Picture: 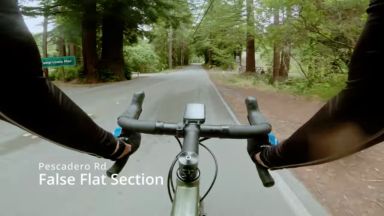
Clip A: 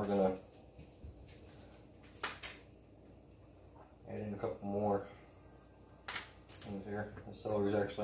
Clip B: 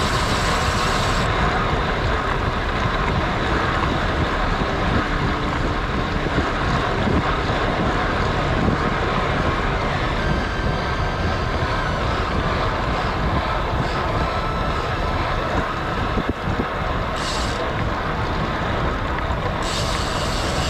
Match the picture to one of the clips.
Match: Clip B